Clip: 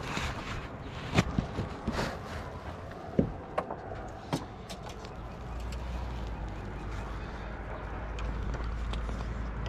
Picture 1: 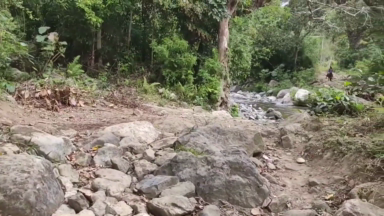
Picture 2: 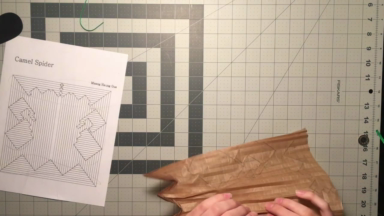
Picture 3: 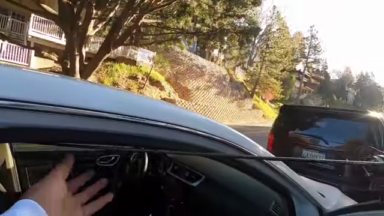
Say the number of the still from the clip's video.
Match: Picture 3